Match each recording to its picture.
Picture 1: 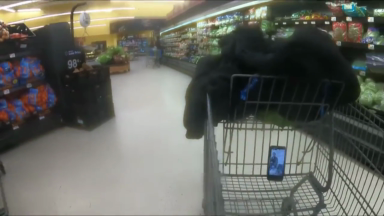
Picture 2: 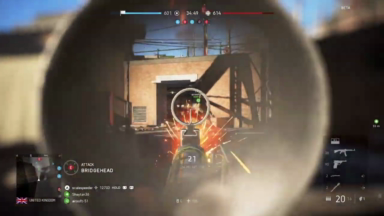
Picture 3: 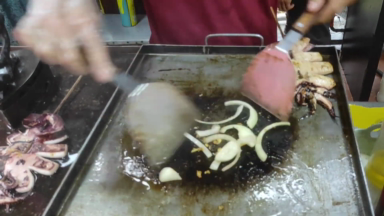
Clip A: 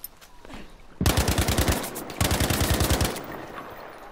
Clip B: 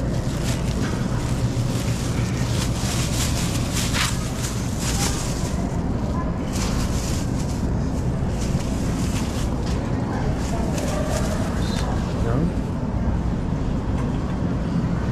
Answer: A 2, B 1